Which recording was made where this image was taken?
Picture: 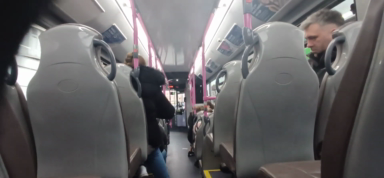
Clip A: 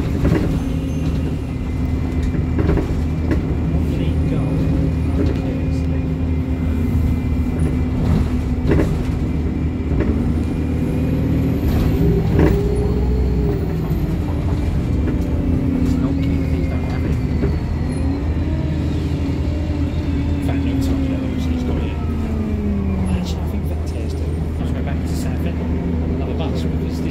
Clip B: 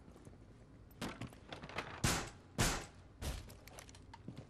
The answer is A